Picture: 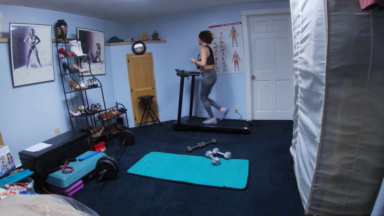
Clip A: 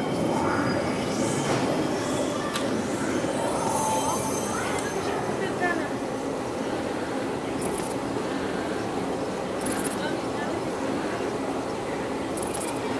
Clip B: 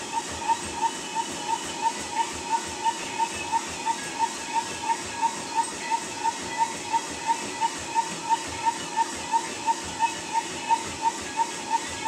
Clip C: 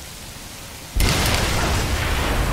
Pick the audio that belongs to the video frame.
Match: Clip B